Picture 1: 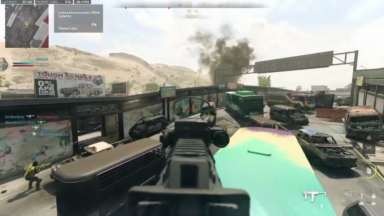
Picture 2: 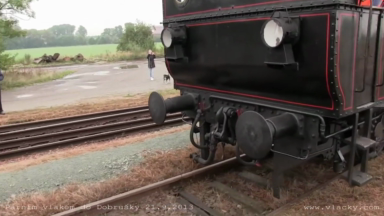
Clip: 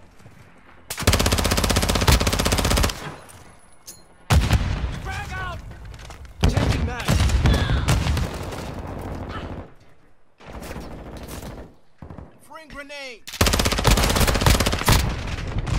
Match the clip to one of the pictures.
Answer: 1